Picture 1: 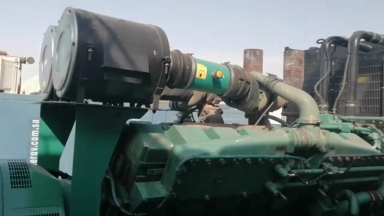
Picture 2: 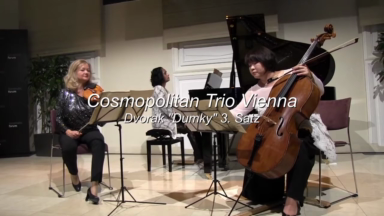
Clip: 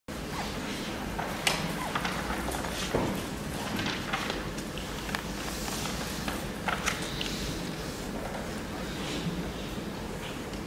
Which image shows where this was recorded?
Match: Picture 2